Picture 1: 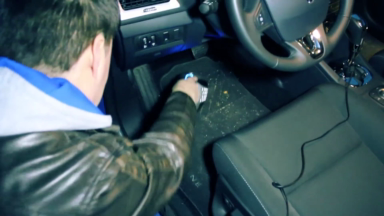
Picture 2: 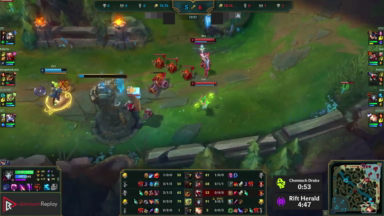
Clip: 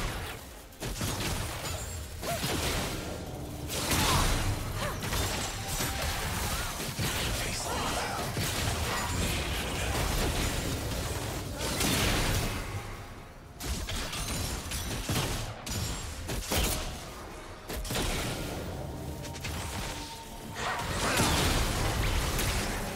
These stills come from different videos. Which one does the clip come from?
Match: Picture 2